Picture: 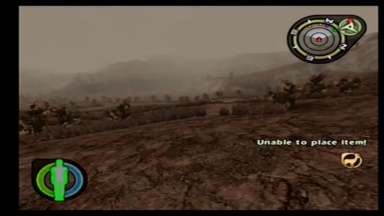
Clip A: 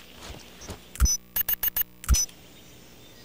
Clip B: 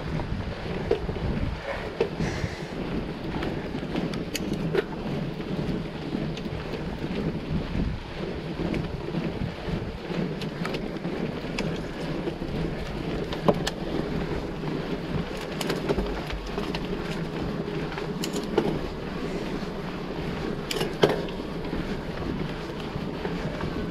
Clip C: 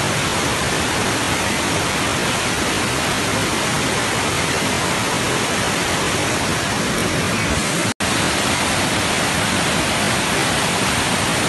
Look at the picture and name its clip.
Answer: A